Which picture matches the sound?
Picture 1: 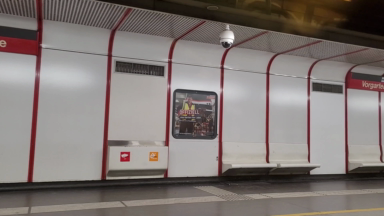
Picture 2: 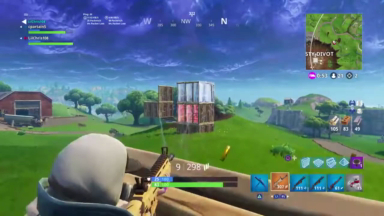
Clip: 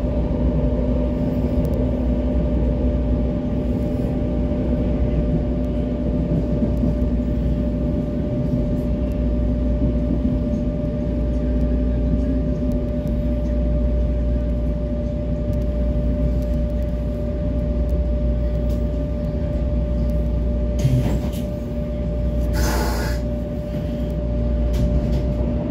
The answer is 1